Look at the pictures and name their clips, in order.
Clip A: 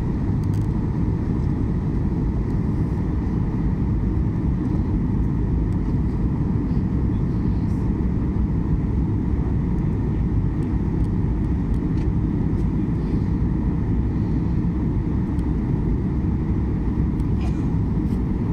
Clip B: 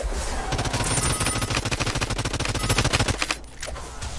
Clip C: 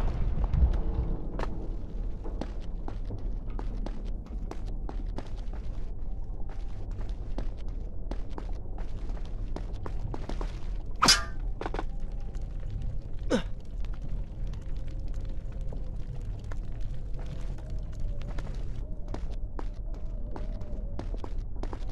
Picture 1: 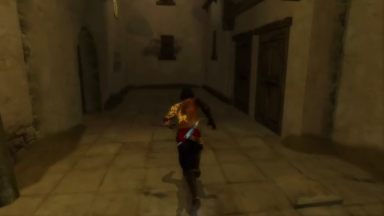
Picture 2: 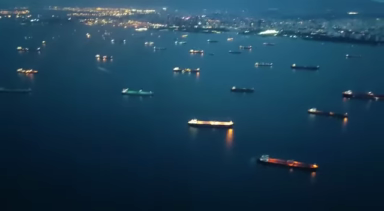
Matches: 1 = C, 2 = A